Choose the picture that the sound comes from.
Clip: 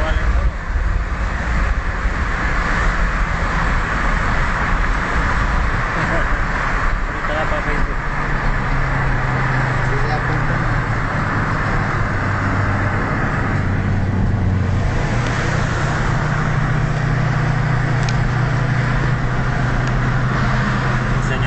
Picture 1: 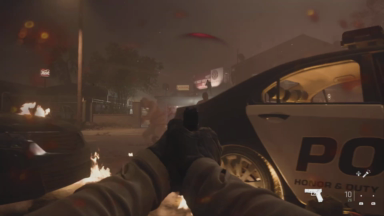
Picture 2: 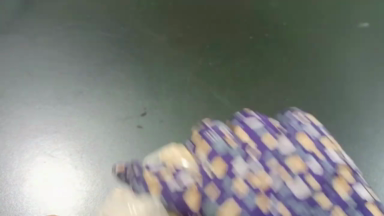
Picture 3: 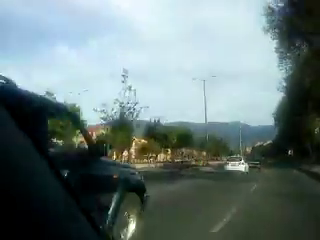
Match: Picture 3